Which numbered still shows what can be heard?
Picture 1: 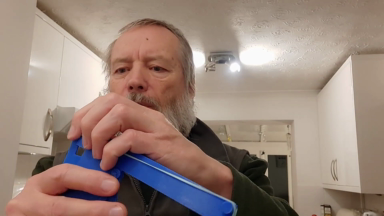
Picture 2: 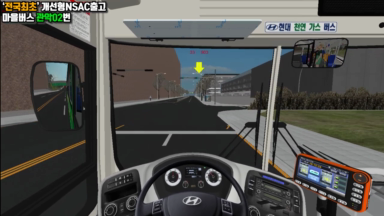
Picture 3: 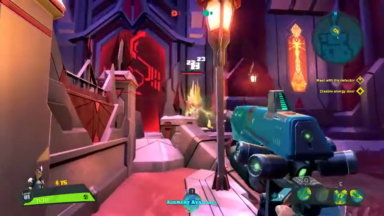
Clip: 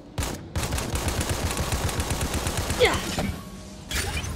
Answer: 3